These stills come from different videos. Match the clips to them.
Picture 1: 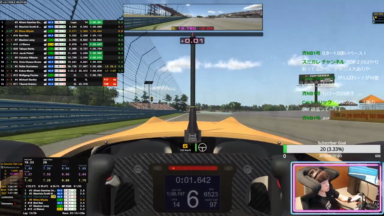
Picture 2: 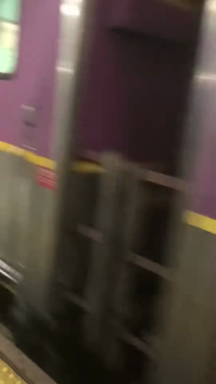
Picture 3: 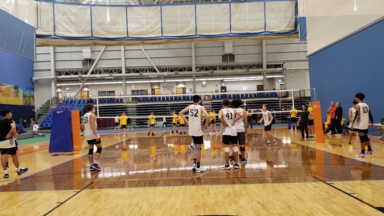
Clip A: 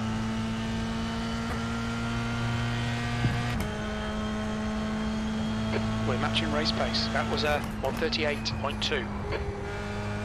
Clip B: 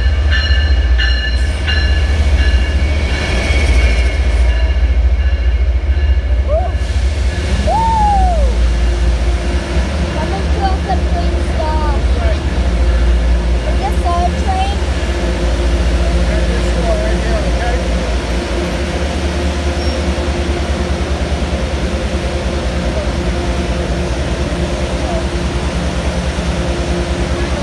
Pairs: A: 1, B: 2